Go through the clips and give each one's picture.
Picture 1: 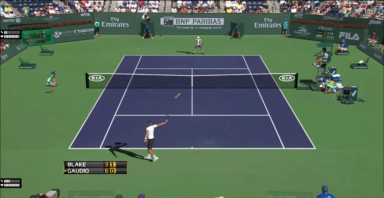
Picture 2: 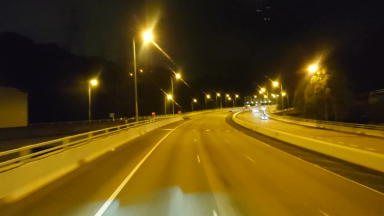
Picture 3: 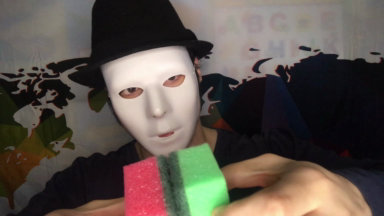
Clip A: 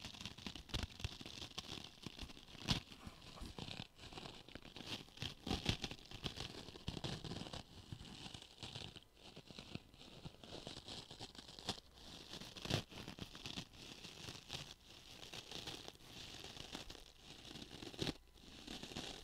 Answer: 3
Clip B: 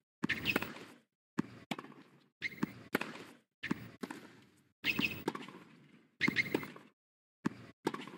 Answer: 1